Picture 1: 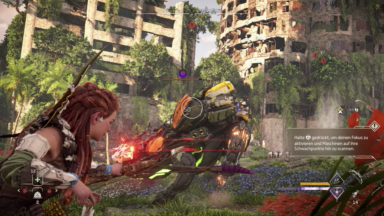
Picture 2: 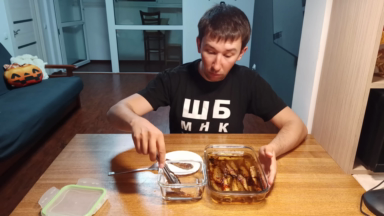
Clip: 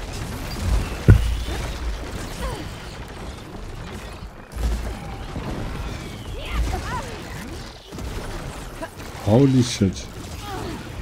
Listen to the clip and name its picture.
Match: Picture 1